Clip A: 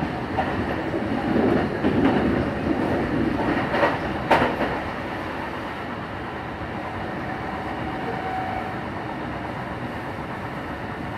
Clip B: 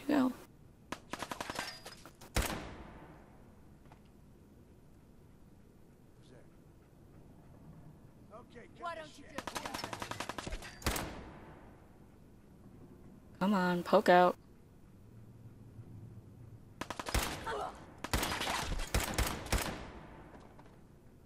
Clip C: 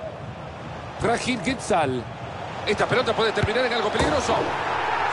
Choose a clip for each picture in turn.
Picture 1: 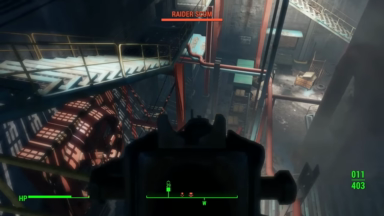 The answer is B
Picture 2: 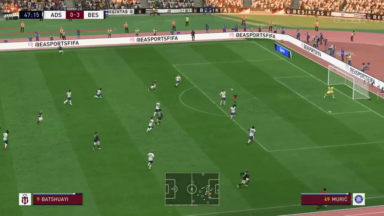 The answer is C